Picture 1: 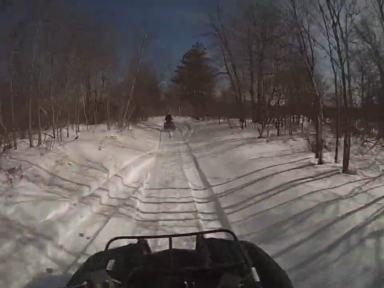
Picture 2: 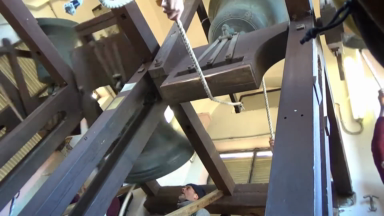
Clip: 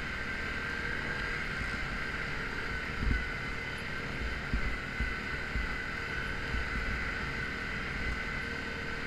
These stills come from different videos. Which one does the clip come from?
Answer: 1